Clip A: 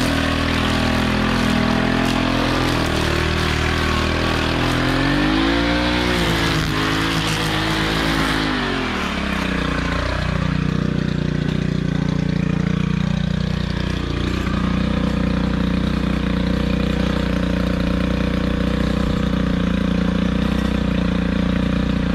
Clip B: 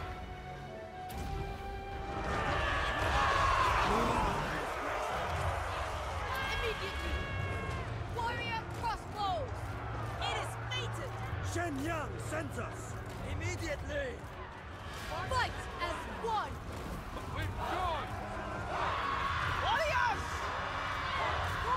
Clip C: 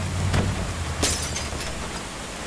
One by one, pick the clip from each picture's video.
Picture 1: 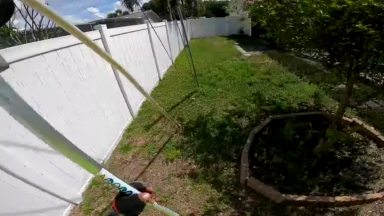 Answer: A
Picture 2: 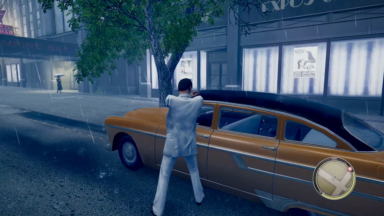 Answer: C